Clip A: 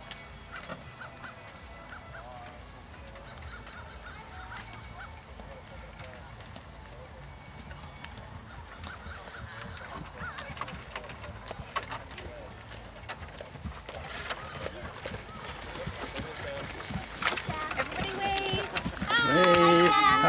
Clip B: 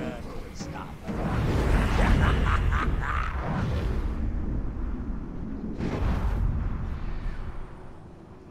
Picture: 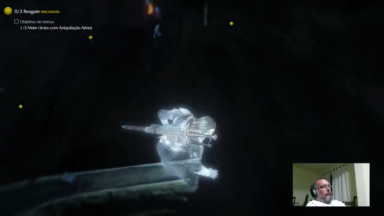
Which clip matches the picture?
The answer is B